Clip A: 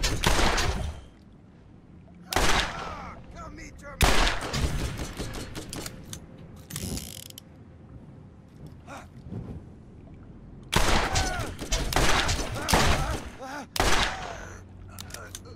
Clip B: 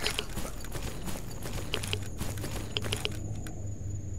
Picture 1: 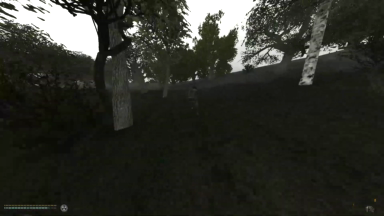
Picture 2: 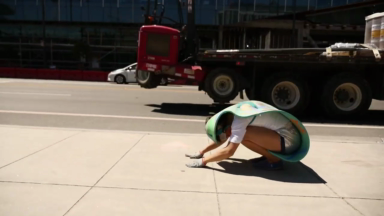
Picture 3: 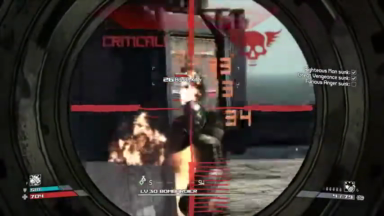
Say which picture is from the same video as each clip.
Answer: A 3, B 1